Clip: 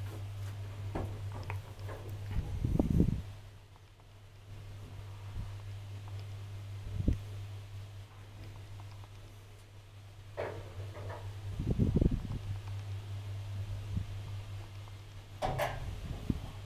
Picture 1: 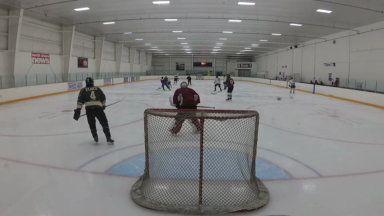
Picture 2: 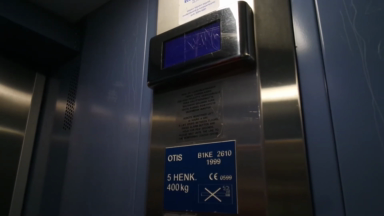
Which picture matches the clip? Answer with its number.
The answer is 2